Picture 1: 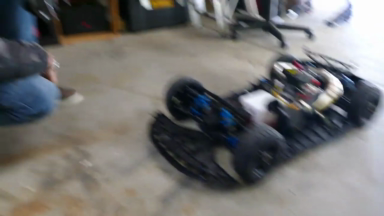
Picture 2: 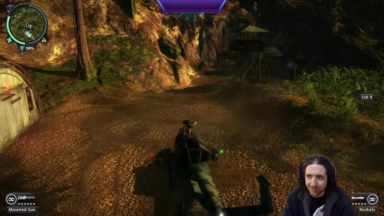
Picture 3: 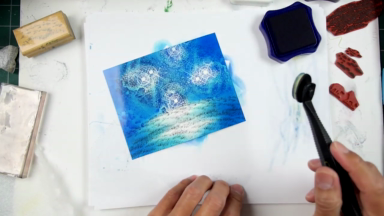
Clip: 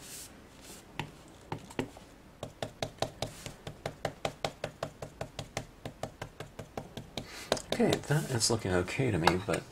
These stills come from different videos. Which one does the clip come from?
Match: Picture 3